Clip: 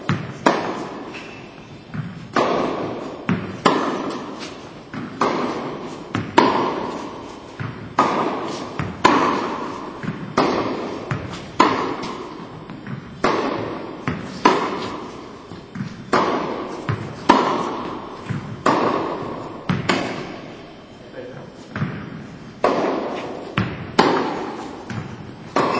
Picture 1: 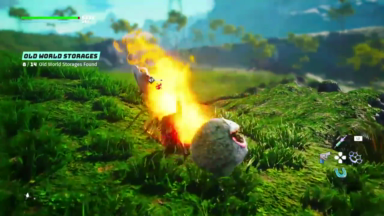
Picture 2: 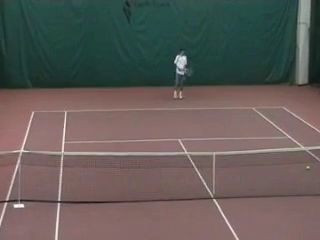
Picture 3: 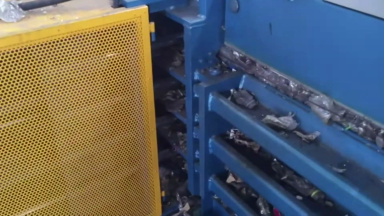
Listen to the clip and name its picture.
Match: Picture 2